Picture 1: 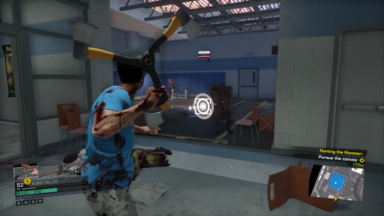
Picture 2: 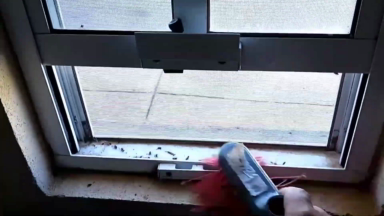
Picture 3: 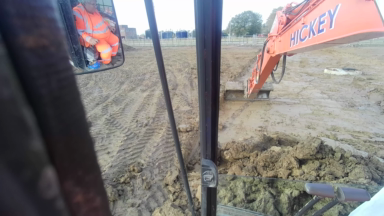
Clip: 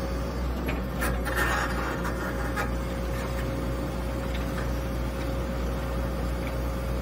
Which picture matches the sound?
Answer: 3